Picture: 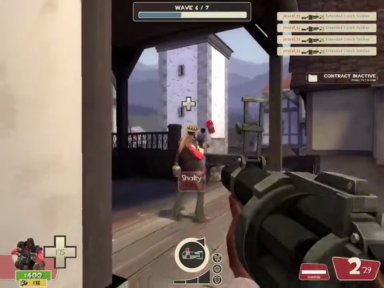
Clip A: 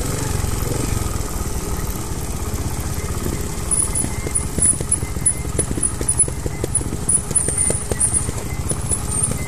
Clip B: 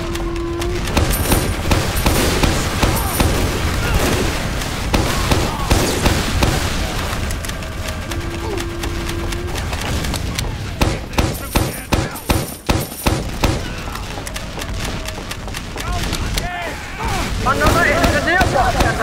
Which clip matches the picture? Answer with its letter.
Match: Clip B